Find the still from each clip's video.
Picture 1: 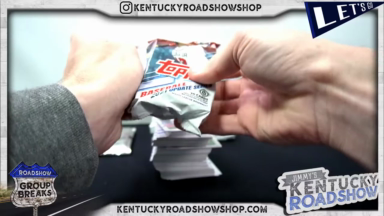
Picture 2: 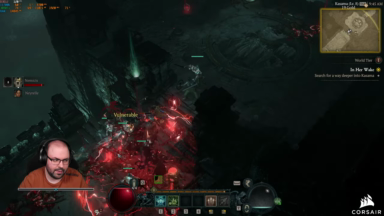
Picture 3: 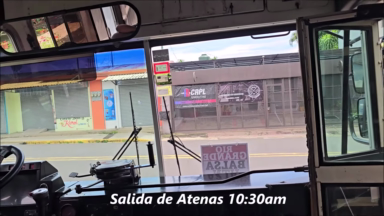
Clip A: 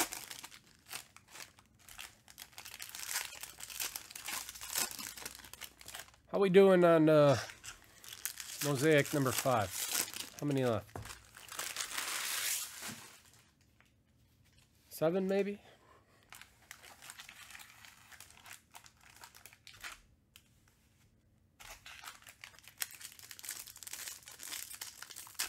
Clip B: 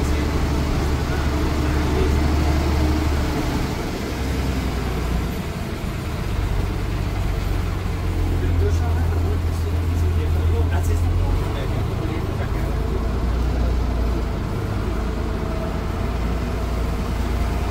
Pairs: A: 1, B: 3